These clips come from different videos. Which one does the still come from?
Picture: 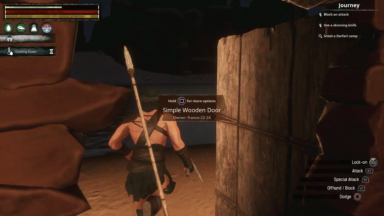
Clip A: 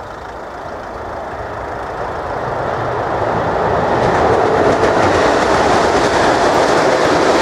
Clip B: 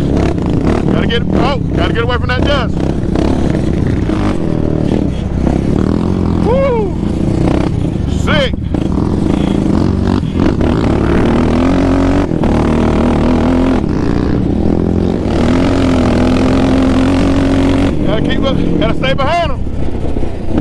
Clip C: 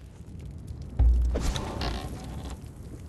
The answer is C